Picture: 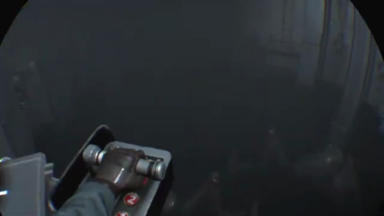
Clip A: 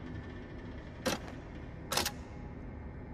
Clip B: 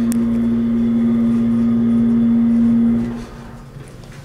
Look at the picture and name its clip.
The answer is A